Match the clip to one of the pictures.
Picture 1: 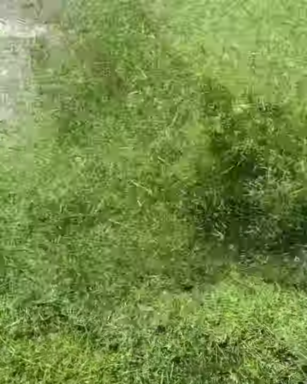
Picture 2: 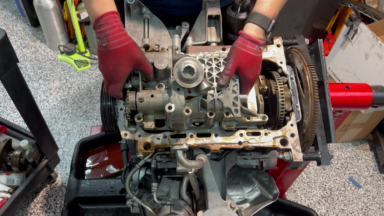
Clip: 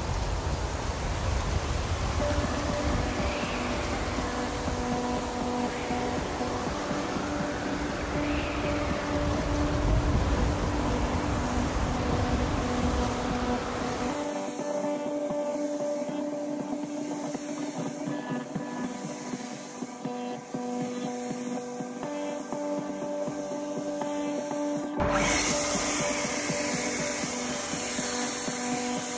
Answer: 1